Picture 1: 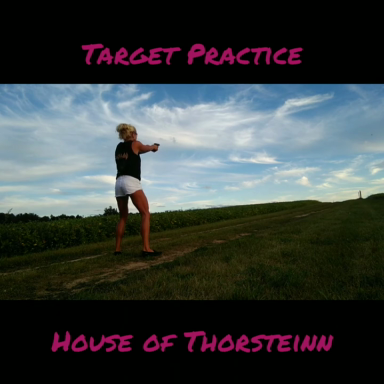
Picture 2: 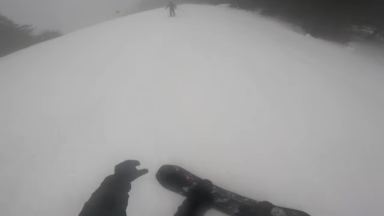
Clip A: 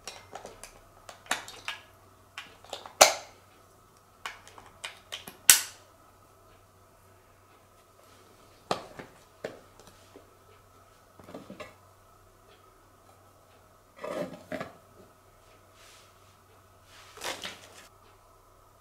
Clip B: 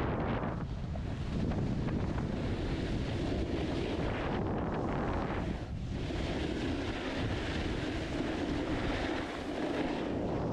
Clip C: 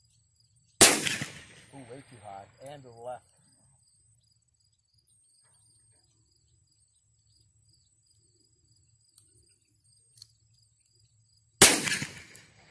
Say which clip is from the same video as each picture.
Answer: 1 C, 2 B